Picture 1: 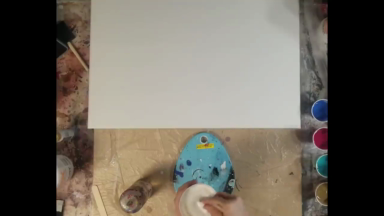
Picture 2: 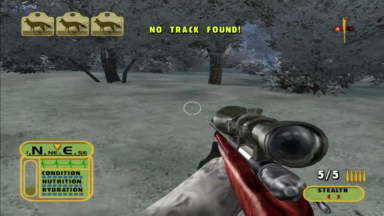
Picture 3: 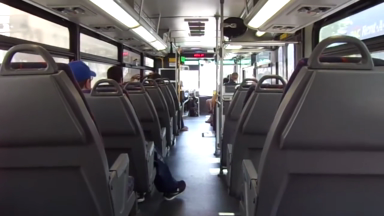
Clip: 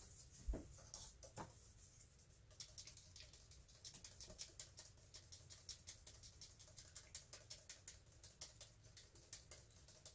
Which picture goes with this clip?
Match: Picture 1